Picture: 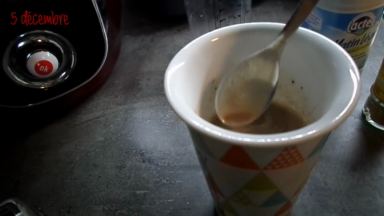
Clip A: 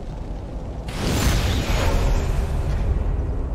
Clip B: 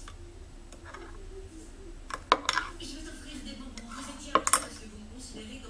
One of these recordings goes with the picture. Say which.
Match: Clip B